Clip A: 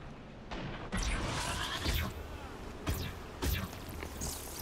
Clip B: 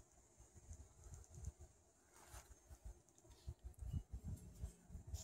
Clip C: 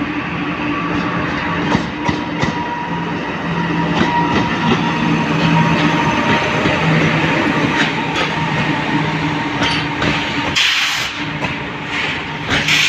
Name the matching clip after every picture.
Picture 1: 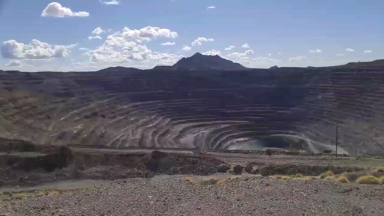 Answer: B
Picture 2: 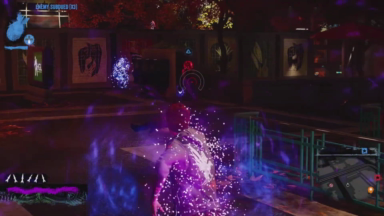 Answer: A